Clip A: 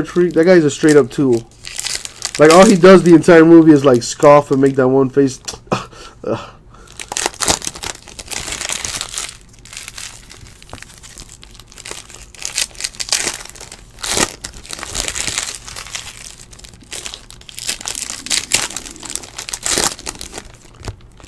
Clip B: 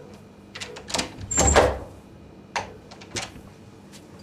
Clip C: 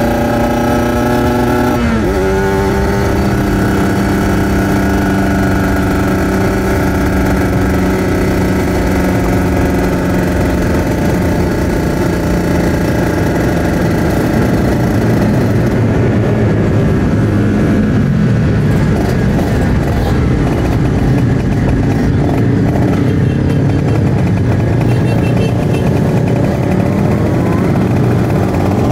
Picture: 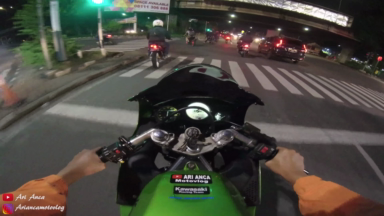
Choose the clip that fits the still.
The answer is C